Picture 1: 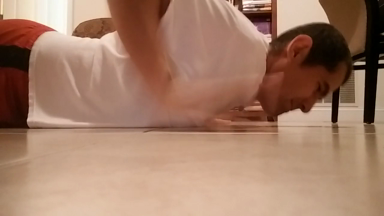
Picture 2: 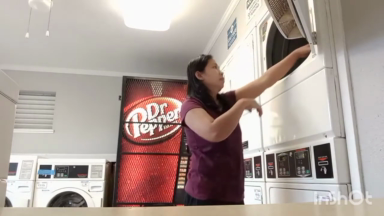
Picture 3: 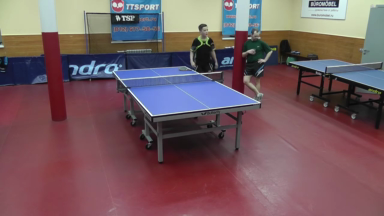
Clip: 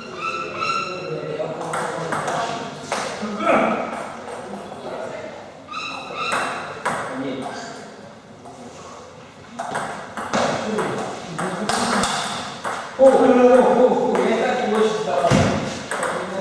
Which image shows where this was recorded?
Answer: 3